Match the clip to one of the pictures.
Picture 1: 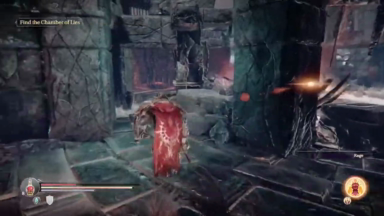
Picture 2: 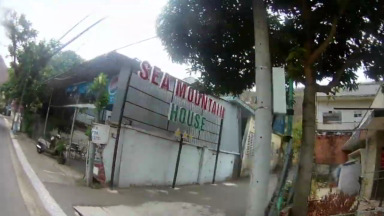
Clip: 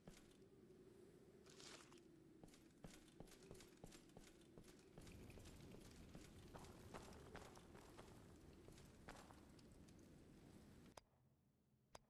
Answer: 1